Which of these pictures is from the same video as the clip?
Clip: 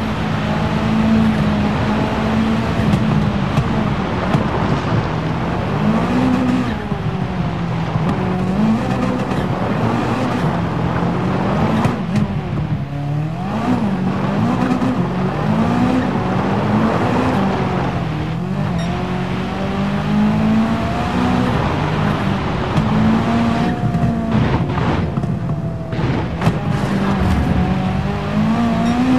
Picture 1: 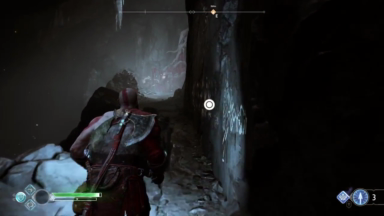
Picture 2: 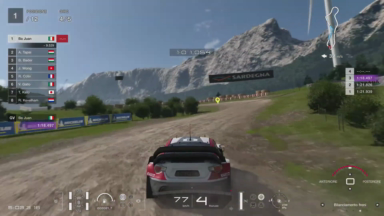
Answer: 2